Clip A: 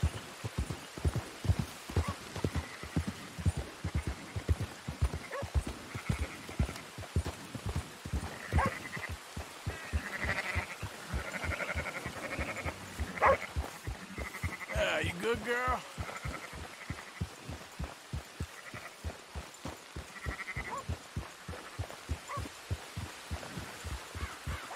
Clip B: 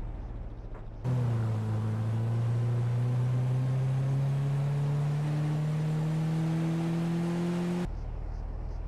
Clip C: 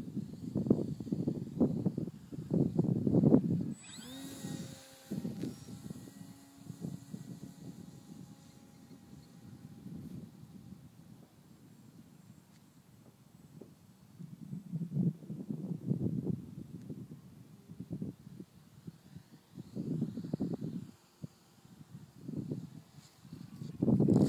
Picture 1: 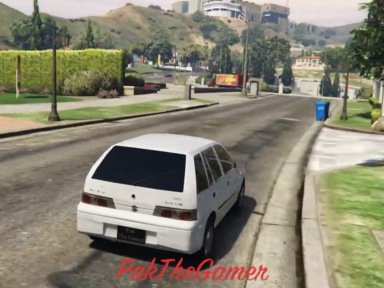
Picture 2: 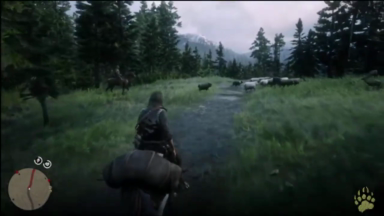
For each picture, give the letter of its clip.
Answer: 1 B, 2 A